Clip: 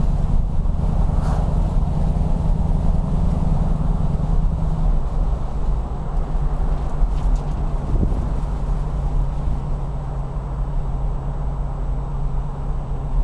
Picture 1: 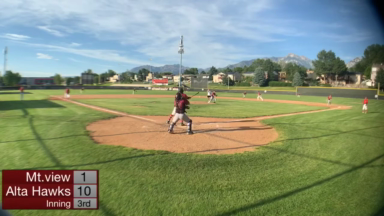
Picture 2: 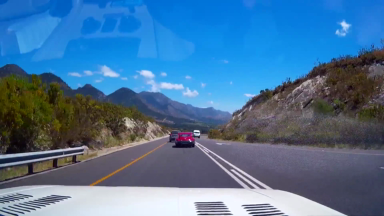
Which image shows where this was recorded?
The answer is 2